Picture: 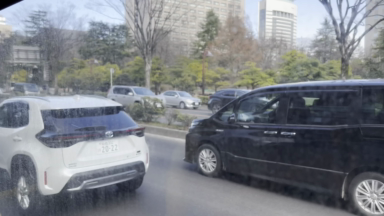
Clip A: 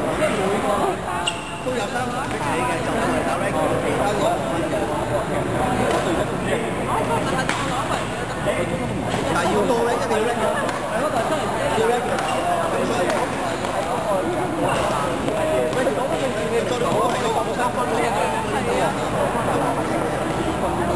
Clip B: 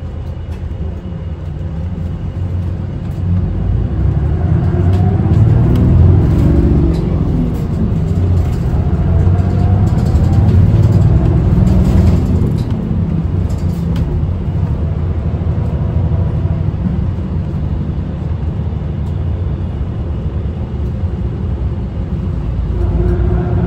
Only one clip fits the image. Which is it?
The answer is B